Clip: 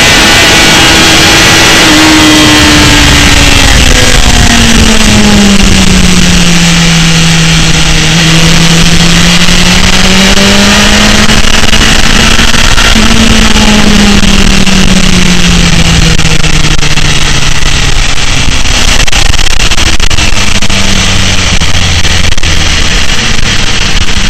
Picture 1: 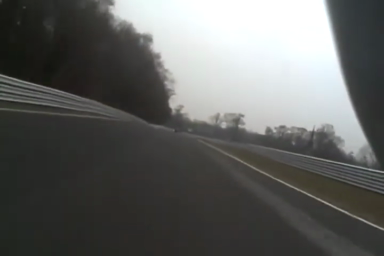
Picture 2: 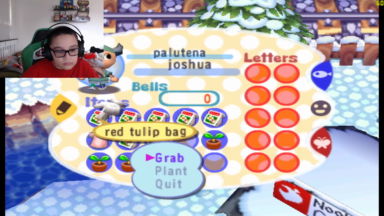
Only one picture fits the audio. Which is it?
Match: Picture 1